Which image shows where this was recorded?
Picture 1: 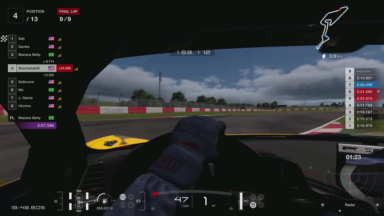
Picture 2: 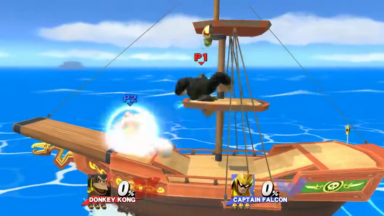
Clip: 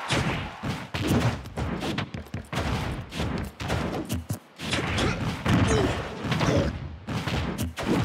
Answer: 2